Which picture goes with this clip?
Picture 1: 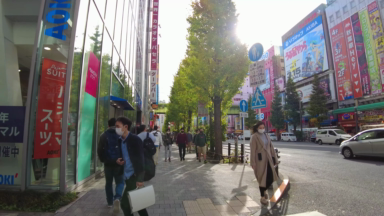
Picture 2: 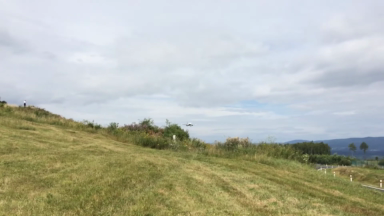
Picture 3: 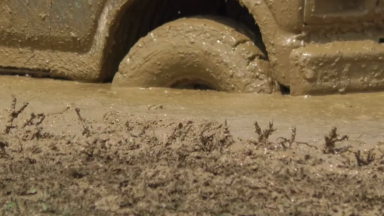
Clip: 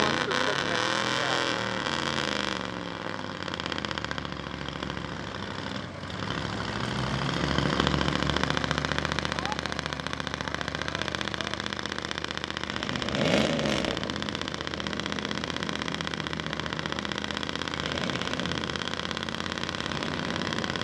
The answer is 3